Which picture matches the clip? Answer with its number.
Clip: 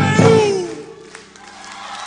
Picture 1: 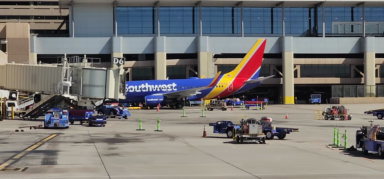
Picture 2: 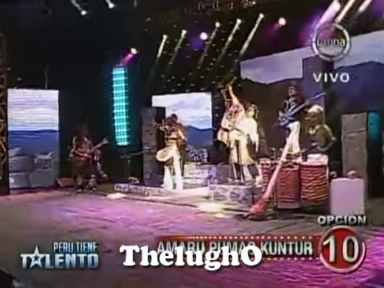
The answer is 2